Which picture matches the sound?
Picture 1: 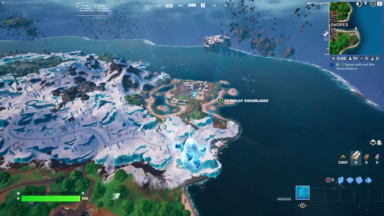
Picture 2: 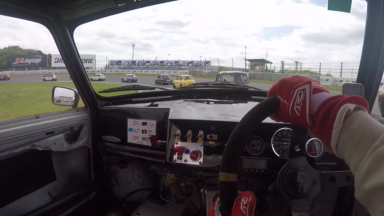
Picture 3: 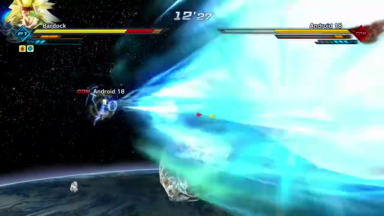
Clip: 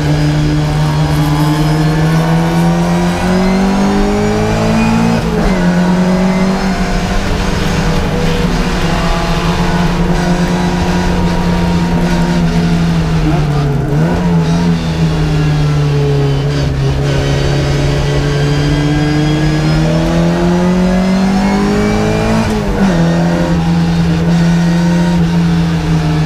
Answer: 2